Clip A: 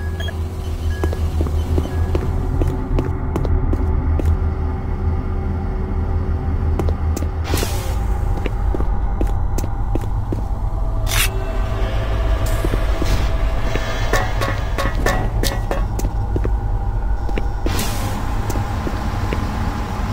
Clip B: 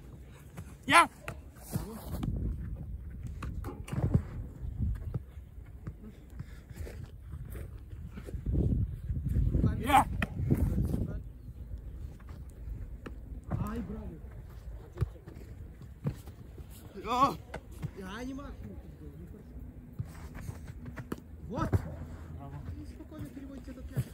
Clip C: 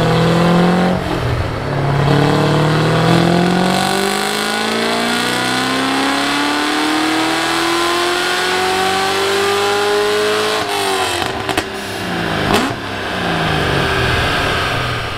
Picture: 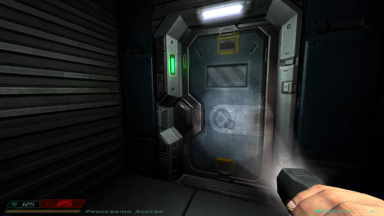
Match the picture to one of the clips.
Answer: A